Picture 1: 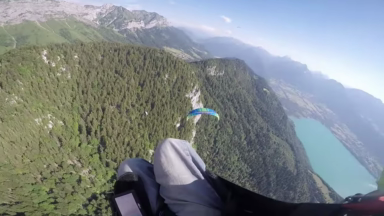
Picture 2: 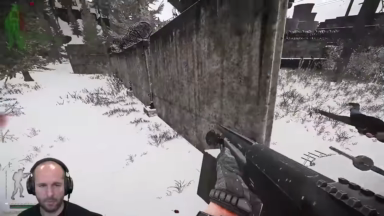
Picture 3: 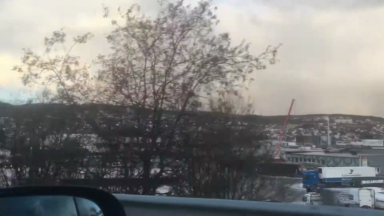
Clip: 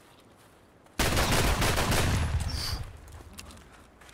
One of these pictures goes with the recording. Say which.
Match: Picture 2